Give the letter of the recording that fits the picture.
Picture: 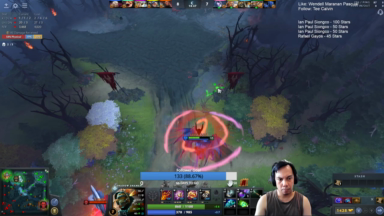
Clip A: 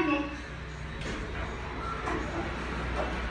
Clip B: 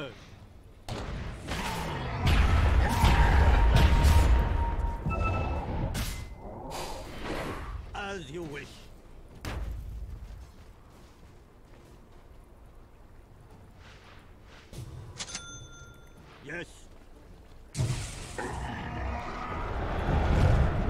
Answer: B